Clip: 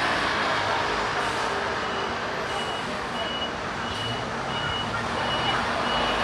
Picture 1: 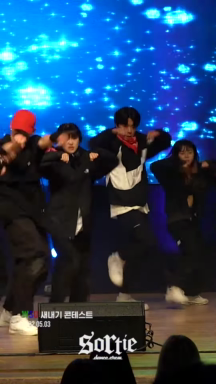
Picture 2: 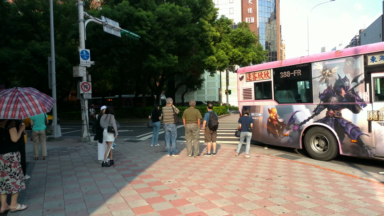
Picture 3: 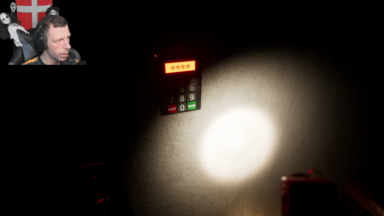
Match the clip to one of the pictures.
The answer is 2